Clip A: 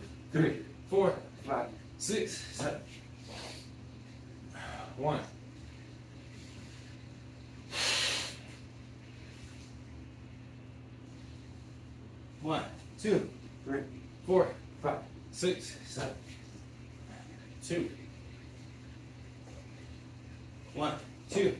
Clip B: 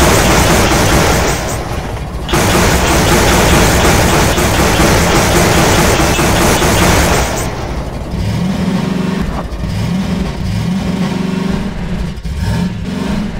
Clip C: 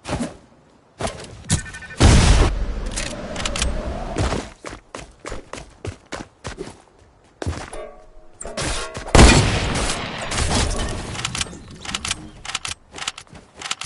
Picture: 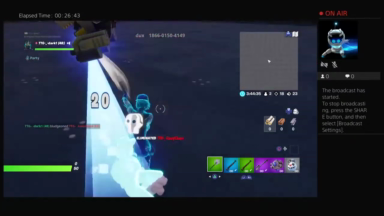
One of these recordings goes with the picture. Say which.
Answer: C